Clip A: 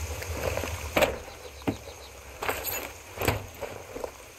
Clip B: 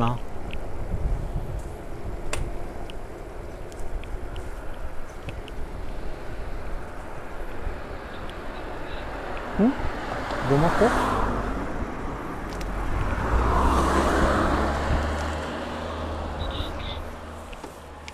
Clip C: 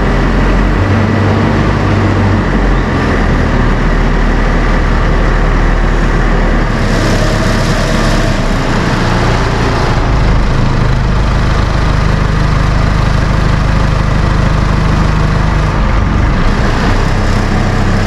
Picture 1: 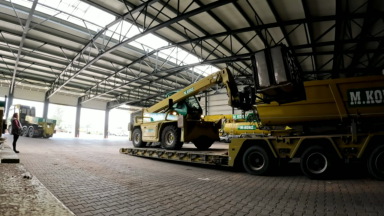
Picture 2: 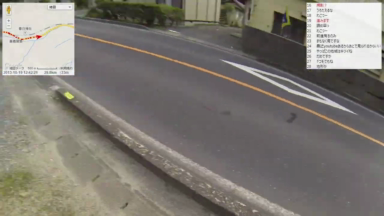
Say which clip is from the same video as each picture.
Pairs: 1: C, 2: B